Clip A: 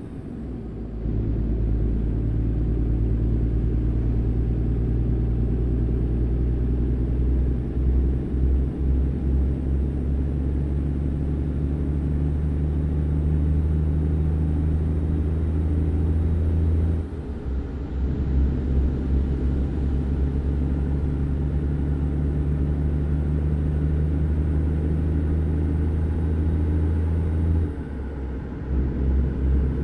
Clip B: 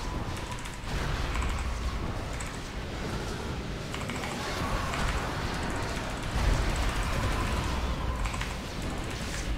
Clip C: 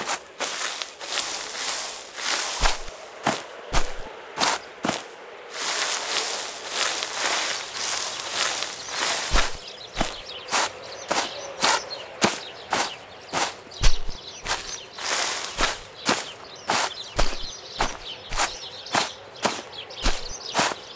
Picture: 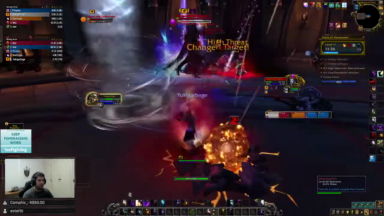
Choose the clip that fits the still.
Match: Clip B